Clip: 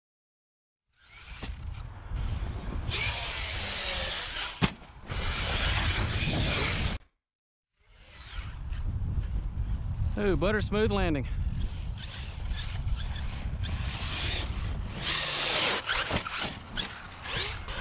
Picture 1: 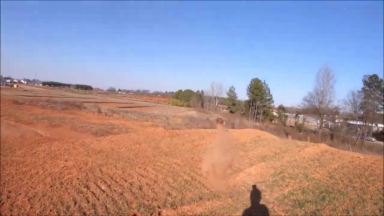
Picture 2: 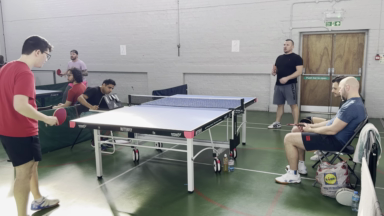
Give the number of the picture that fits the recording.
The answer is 1